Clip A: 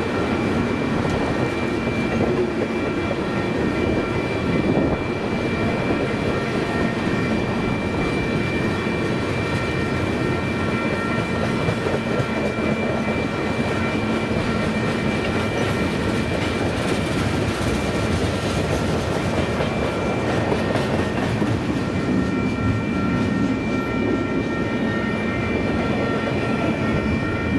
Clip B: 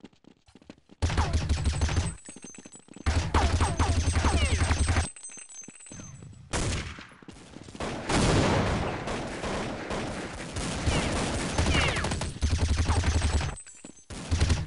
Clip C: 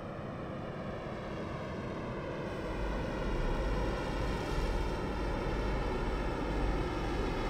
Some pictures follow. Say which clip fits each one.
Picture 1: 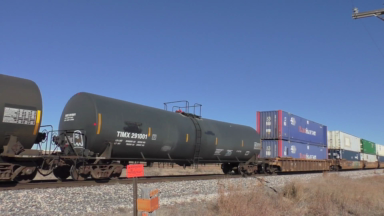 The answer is A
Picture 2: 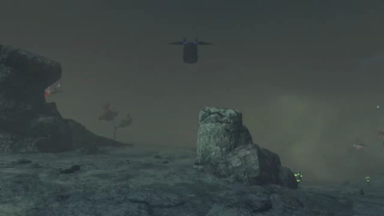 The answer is C